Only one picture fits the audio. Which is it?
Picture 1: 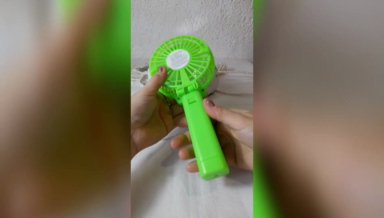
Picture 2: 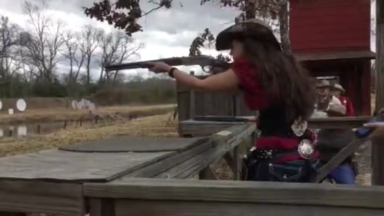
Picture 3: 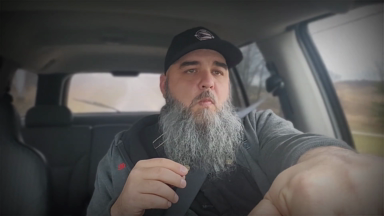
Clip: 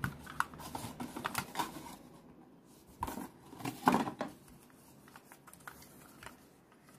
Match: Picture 1